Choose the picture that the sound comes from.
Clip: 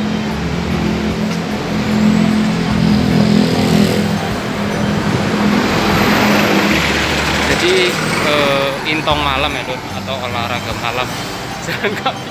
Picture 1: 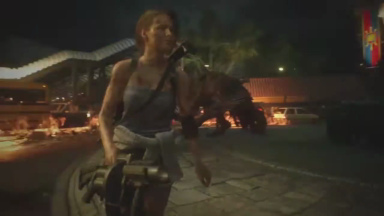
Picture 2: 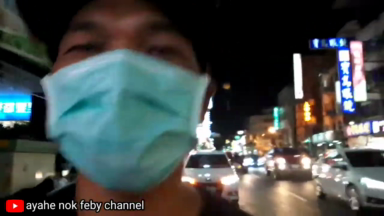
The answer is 2